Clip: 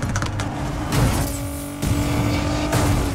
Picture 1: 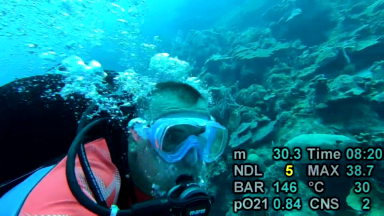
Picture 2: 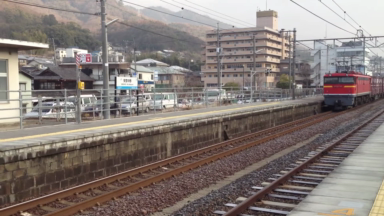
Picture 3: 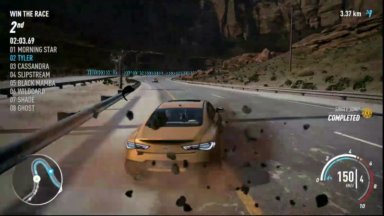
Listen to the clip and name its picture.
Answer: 3